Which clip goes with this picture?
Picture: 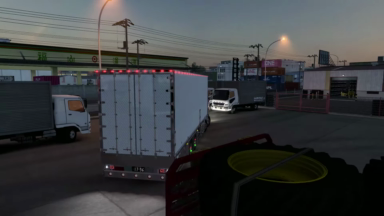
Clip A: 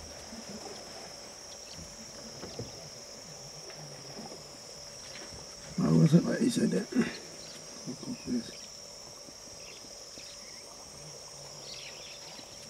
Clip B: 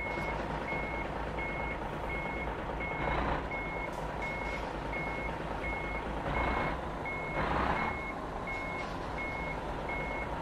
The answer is B